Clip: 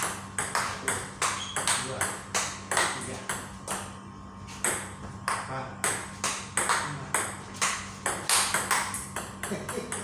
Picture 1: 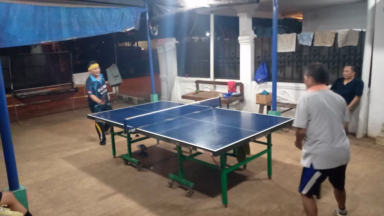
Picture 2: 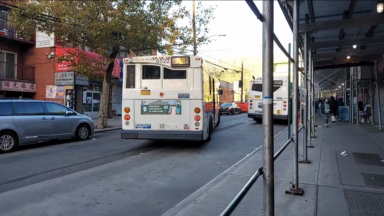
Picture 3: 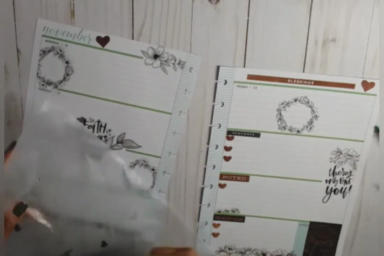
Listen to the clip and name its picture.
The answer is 1